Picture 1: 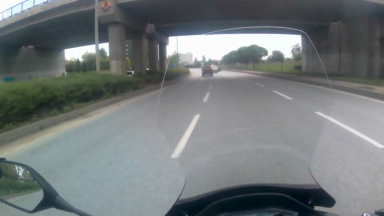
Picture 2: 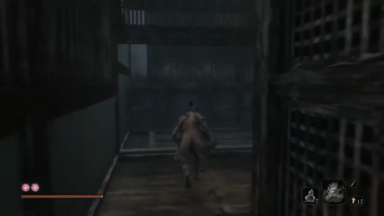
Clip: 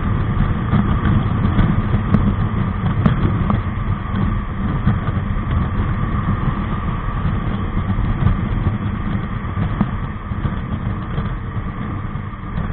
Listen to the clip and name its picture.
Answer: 1